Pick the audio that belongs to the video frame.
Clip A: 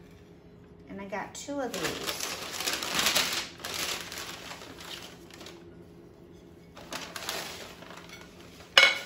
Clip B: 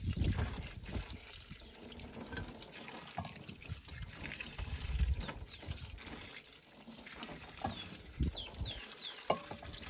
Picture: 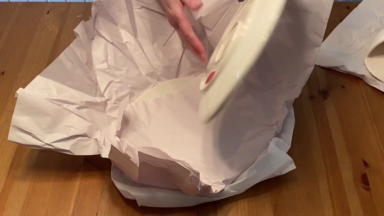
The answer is A